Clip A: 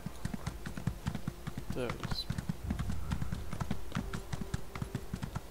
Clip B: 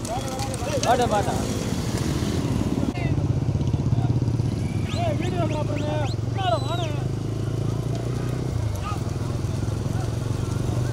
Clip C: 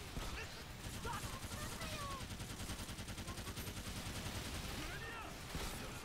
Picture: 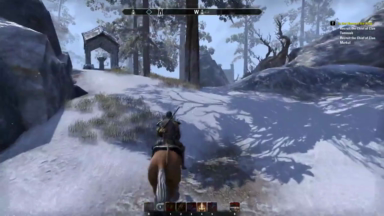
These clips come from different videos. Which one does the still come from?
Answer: A